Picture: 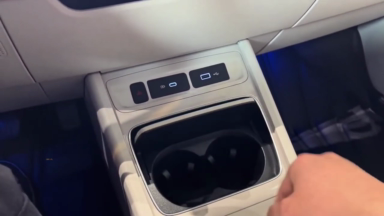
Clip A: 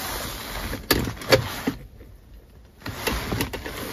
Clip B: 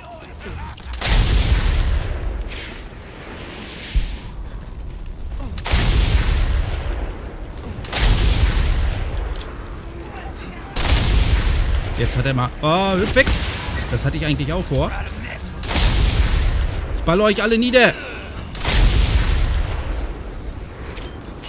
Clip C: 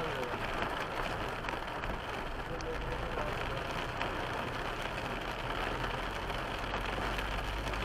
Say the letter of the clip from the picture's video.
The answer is A